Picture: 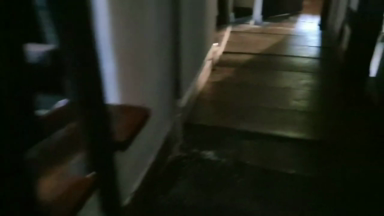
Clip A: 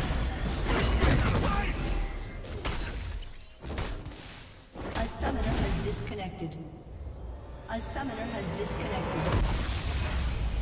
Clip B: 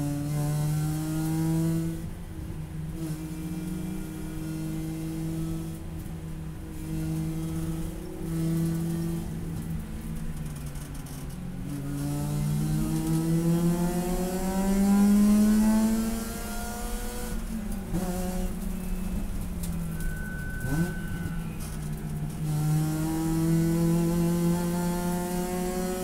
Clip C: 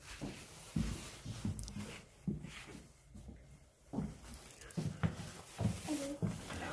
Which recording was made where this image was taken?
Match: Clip C